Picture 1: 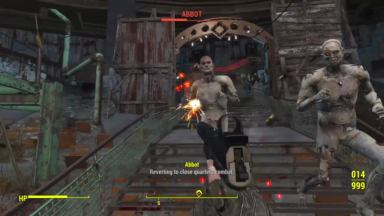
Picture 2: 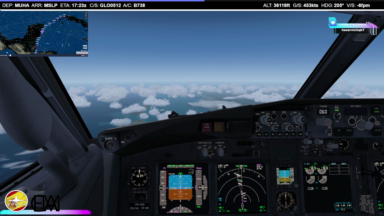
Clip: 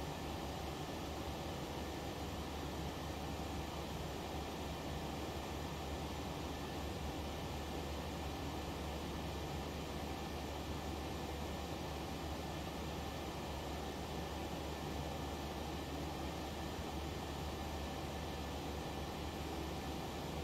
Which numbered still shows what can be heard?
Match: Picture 2